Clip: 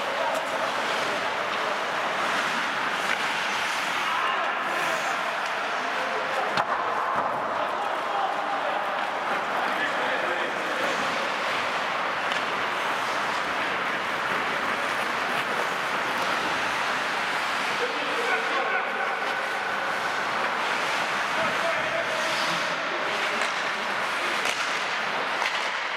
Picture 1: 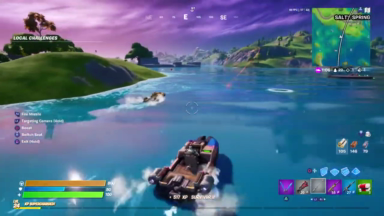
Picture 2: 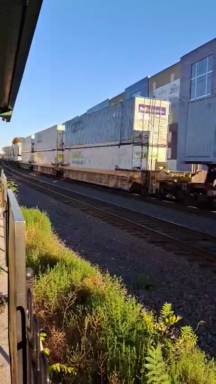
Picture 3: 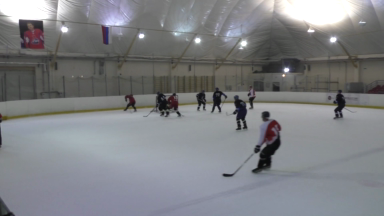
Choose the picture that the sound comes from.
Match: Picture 3